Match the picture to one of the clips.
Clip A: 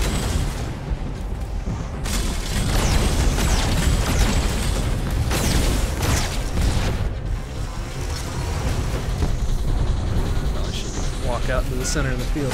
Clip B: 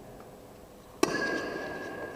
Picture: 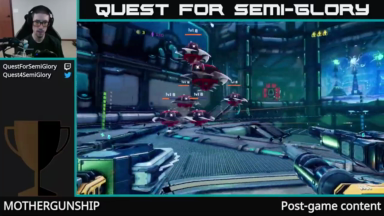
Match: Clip A